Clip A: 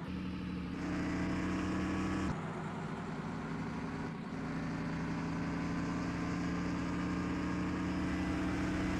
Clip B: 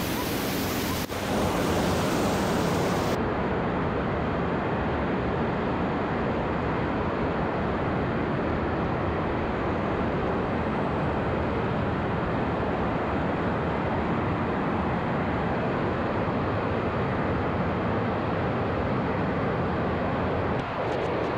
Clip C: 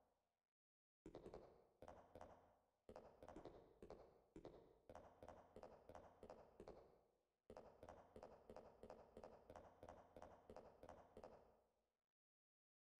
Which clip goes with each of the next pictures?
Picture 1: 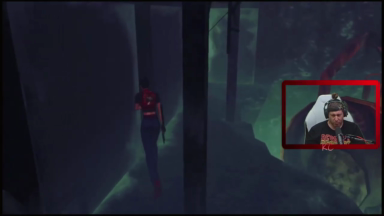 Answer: C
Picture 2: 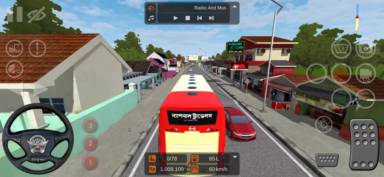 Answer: A